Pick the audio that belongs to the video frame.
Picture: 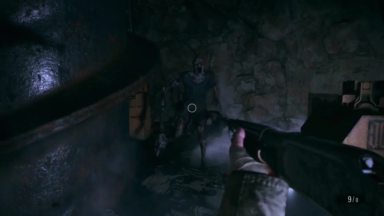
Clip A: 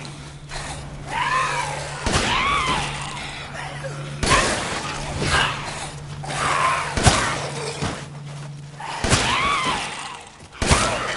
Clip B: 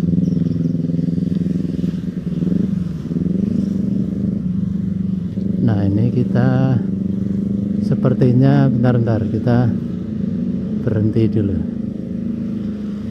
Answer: A